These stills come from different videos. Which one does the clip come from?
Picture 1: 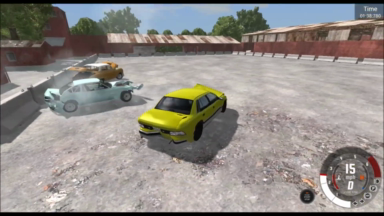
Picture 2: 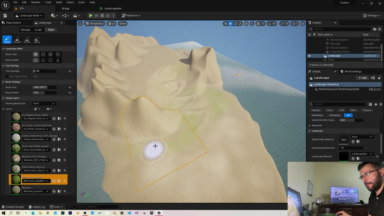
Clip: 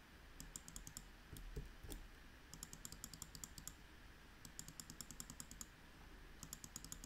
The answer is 2